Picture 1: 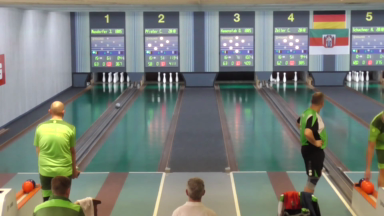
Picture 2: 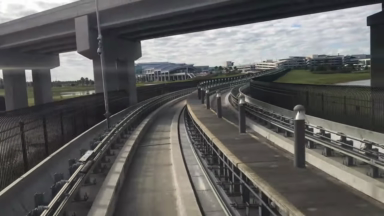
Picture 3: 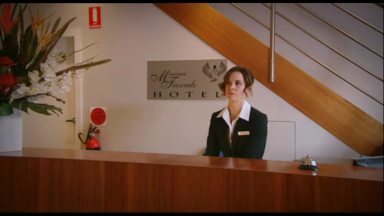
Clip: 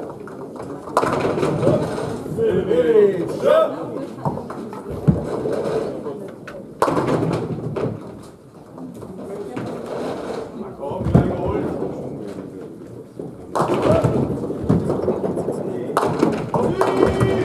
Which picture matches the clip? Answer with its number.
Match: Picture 1